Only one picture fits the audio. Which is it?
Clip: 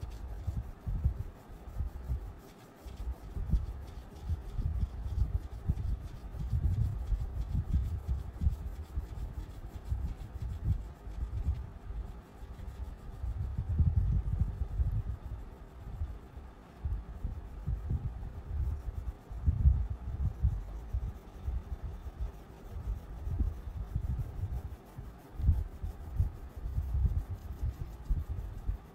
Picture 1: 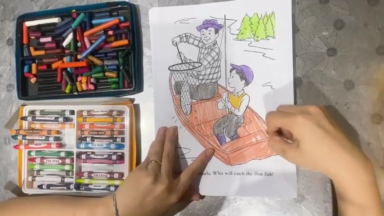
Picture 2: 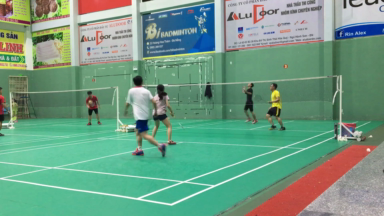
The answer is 1